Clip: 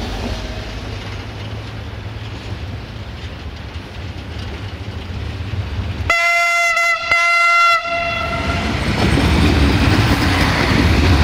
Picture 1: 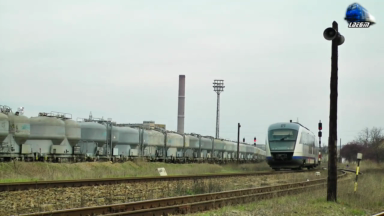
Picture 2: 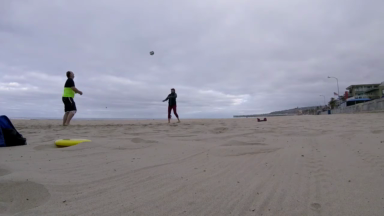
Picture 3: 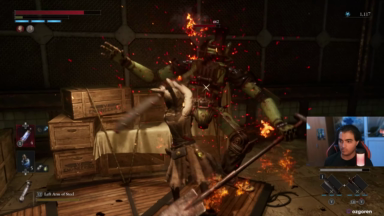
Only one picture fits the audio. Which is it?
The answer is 1